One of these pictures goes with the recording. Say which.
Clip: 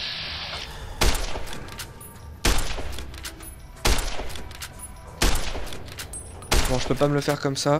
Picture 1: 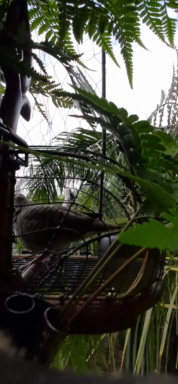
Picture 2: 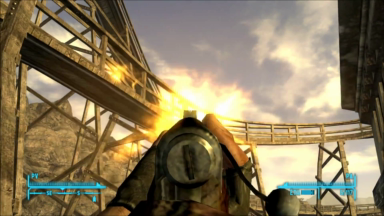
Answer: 2